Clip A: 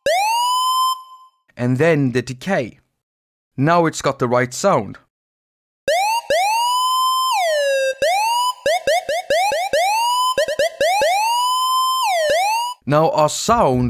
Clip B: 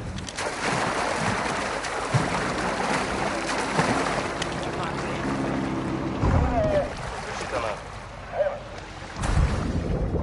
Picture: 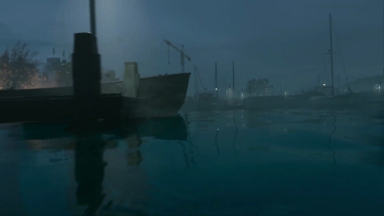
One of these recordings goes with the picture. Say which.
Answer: B